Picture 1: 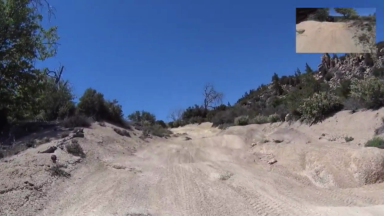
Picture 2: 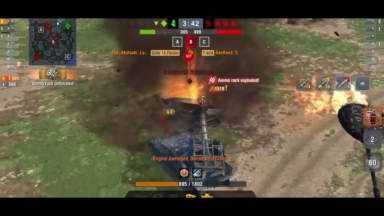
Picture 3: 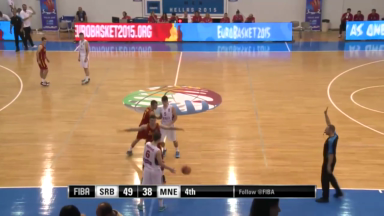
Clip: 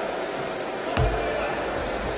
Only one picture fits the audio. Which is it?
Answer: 3